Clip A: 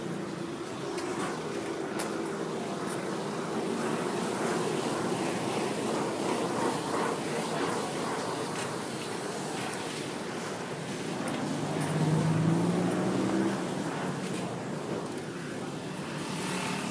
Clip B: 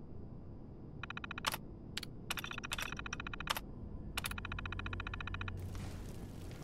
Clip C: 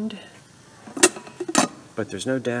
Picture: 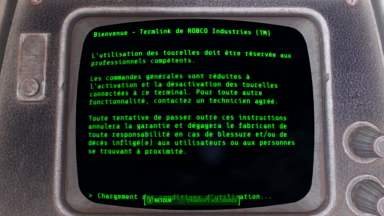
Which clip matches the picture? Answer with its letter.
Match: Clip B